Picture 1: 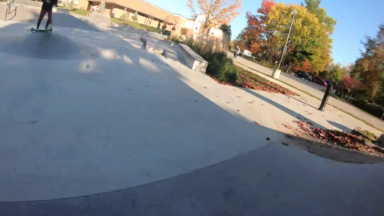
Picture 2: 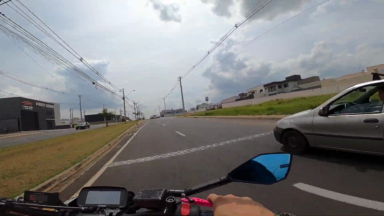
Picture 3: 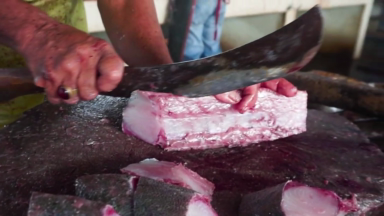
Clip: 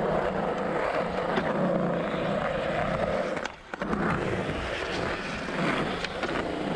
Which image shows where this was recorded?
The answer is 1